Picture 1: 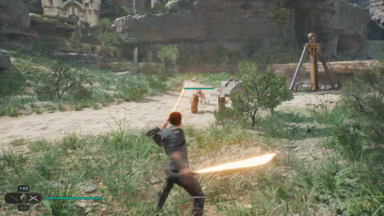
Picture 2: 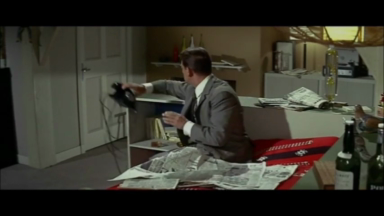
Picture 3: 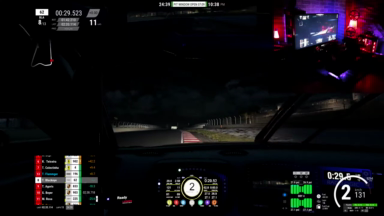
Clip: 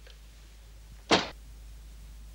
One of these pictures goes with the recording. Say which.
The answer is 2